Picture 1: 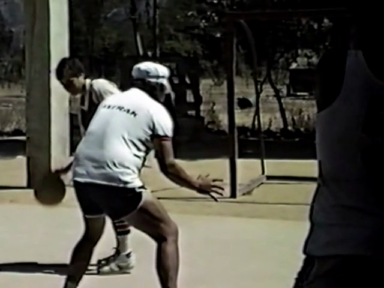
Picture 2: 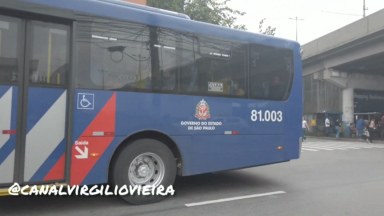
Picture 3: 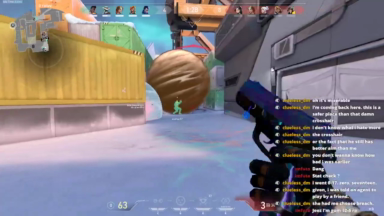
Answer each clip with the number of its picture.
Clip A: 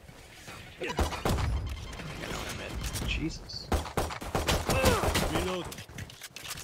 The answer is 3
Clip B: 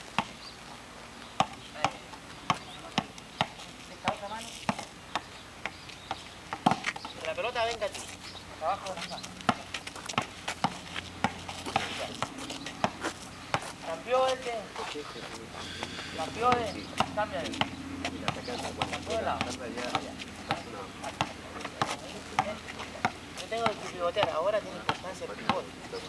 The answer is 1